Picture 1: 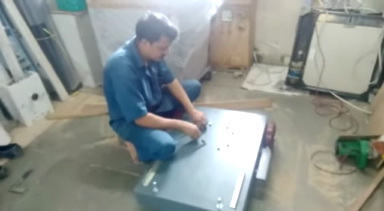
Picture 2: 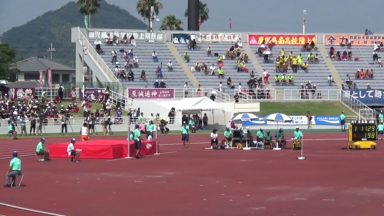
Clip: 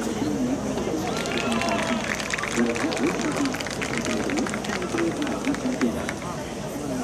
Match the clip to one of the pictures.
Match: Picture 2